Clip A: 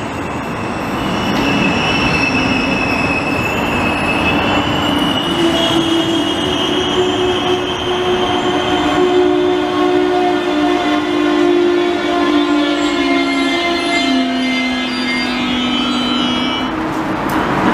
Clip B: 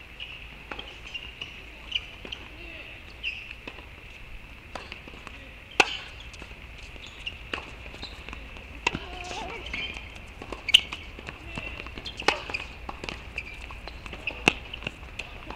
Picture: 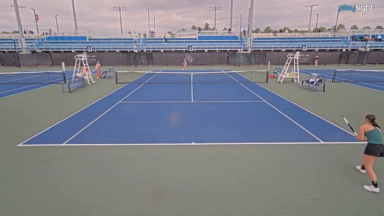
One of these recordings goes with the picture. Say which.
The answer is B